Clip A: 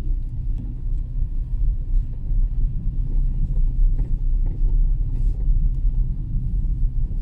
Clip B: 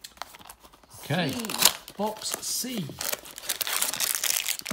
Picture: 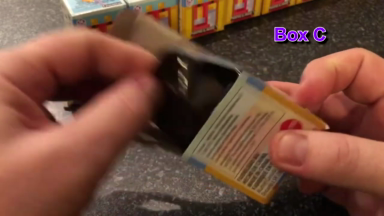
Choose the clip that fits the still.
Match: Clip B